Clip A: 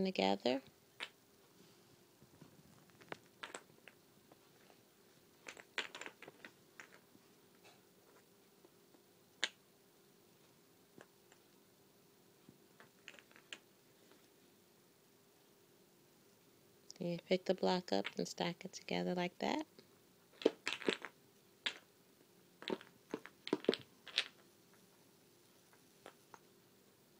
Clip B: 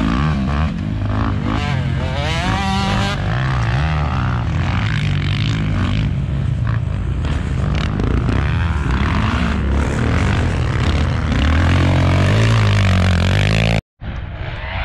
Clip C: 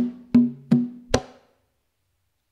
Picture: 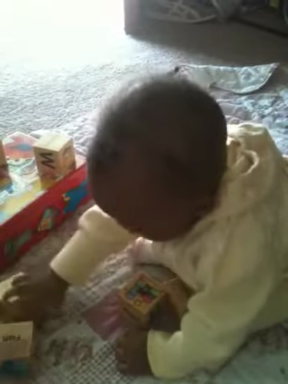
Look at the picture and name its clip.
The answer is A